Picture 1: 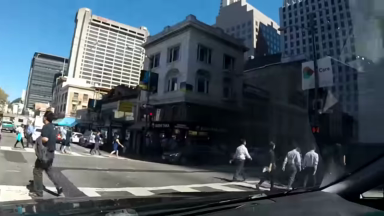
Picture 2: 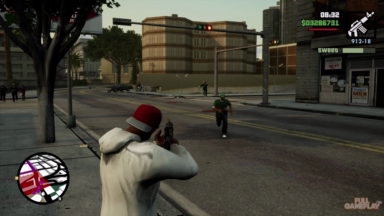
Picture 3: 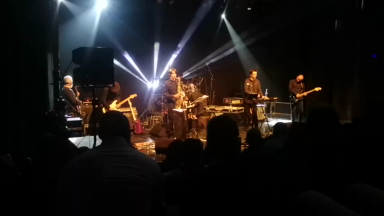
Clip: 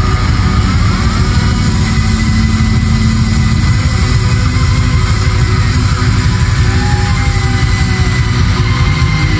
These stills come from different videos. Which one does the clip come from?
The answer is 3